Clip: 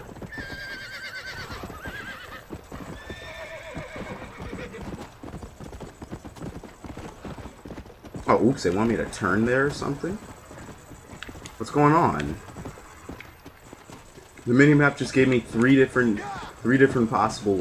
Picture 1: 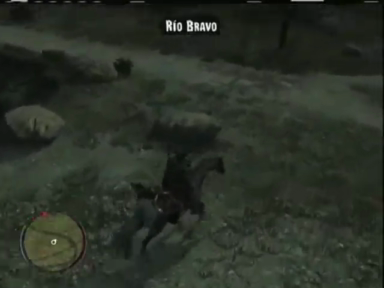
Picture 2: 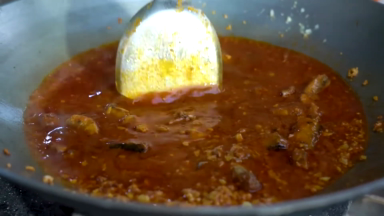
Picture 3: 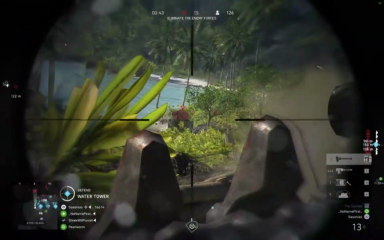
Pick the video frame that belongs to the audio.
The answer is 1